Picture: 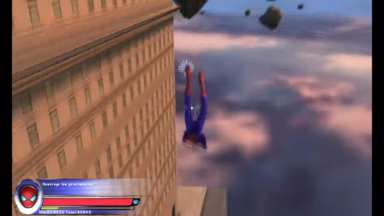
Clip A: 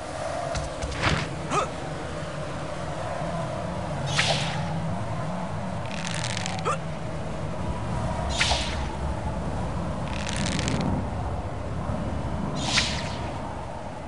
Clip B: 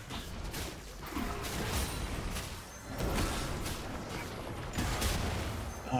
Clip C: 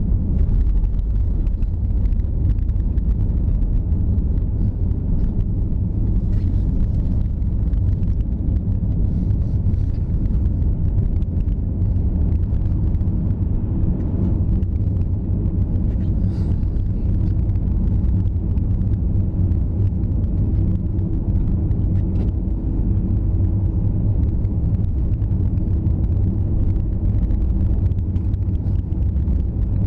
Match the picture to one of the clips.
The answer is A